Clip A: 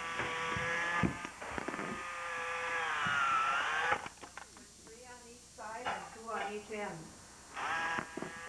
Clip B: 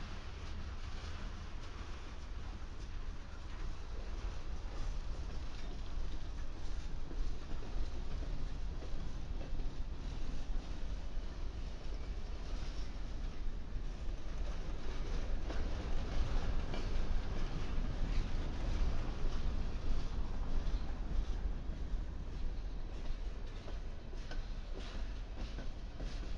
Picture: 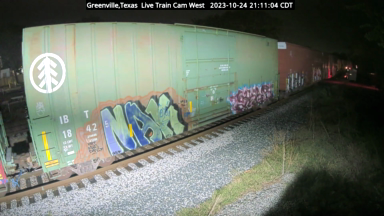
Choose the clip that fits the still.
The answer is B